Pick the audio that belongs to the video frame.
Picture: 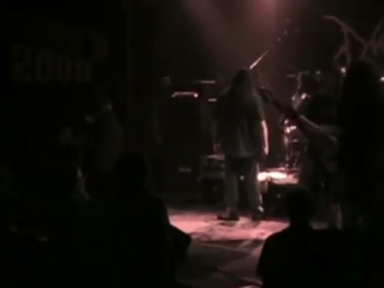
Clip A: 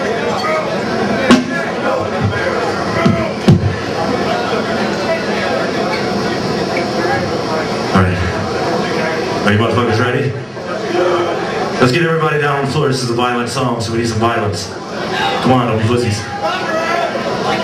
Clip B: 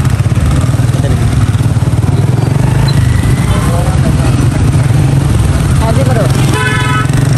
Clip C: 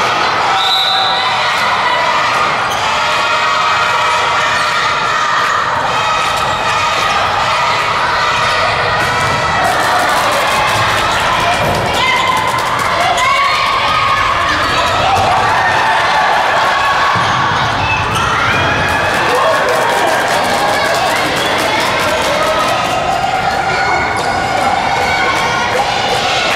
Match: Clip A